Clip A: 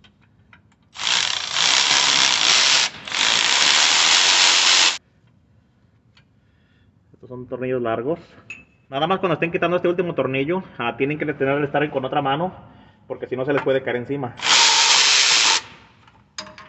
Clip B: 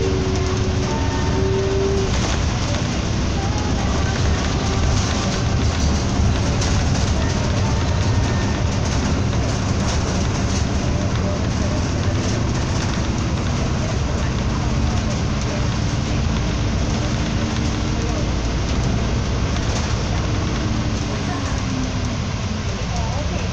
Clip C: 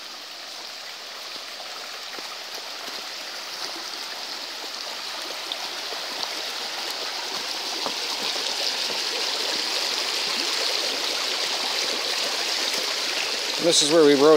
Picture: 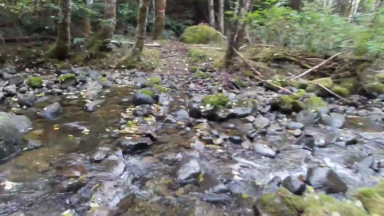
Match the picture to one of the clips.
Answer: C